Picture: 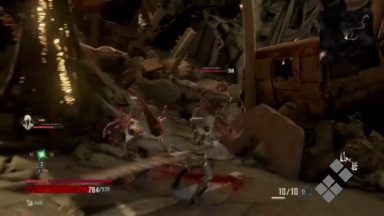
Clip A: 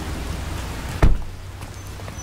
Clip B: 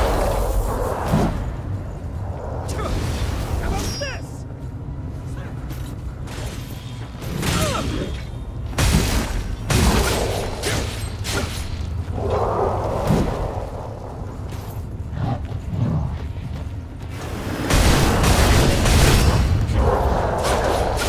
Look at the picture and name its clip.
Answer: B